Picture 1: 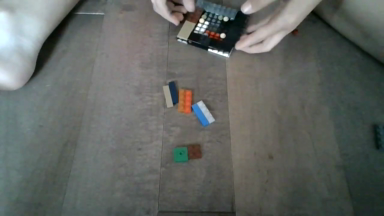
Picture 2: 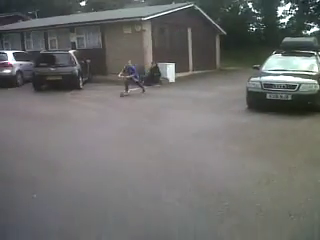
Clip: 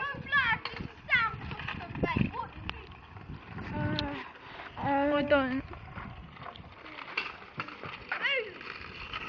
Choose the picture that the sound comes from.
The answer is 2